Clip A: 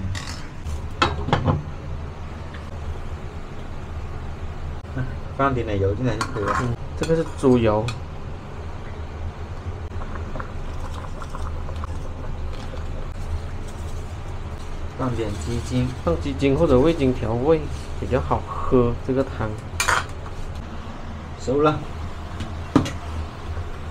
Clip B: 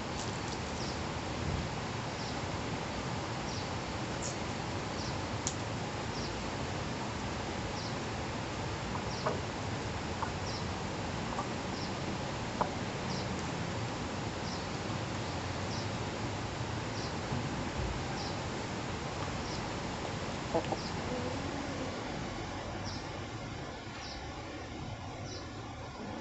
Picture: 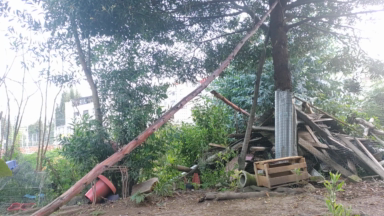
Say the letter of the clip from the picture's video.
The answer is B